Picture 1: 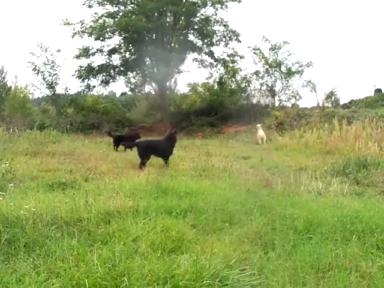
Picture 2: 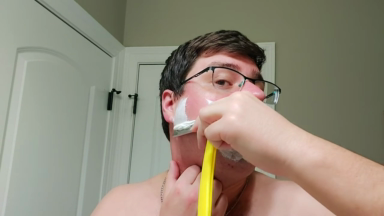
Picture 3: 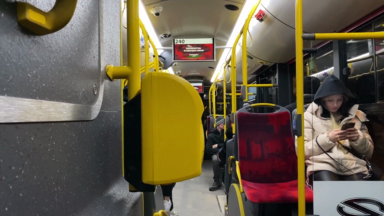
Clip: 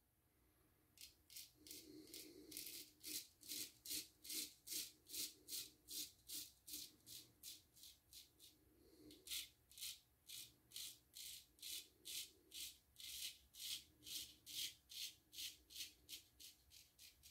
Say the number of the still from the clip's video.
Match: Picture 2